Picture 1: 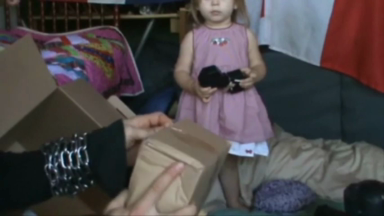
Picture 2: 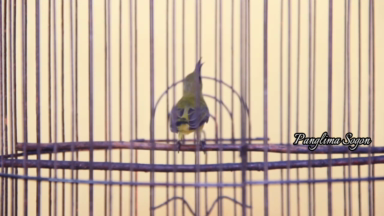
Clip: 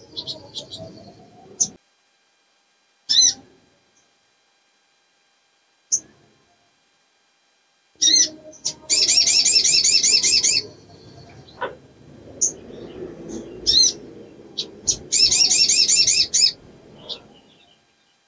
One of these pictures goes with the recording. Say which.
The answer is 2